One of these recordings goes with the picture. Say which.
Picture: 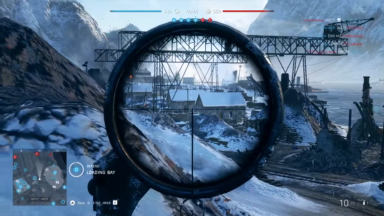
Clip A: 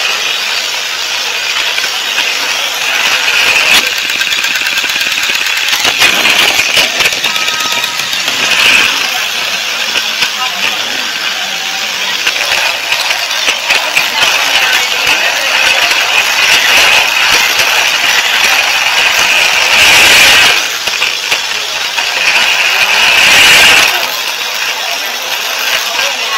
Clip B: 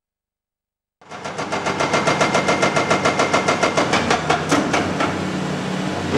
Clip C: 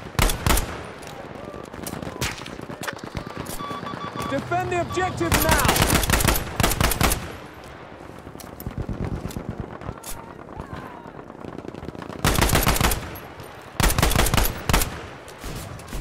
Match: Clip C